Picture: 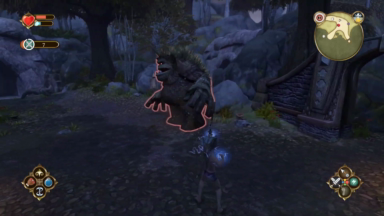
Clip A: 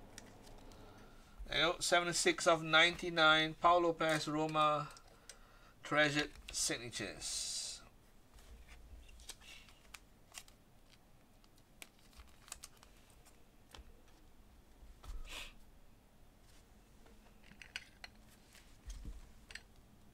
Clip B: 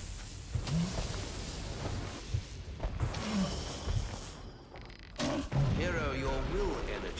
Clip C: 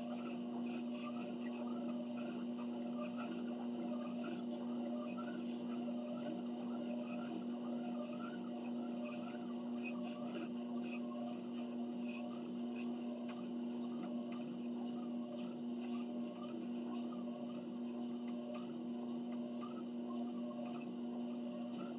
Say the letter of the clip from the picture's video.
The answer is B